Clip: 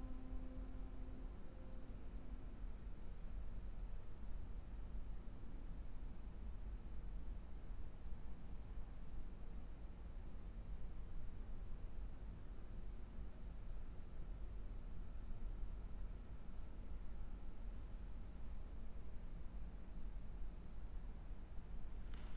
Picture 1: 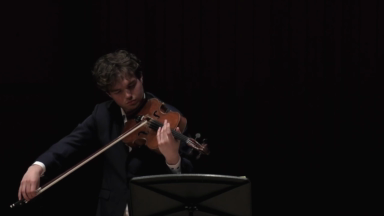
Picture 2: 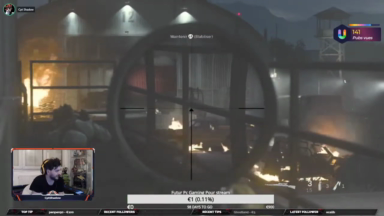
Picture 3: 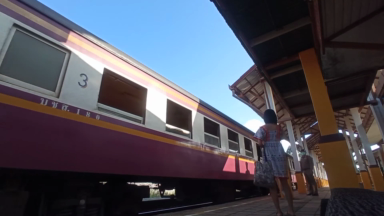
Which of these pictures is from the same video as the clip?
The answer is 1